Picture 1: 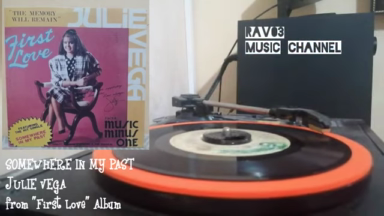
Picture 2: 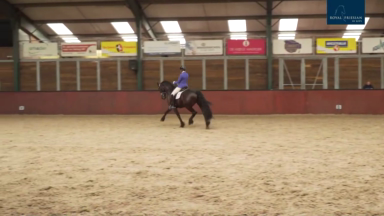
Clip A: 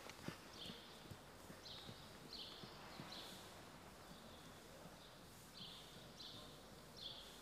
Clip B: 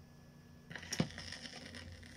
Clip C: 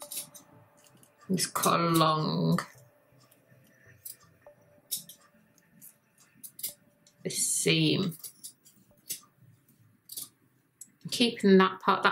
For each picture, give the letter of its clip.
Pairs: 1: B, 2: A